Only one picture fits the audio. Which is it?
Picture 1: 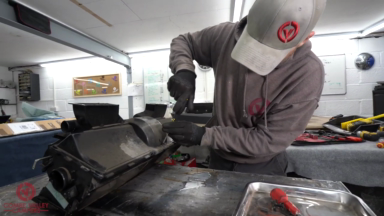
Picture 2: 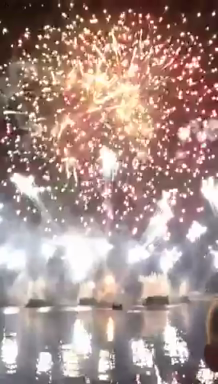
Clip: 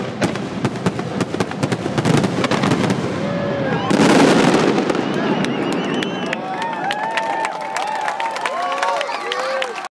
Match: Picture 2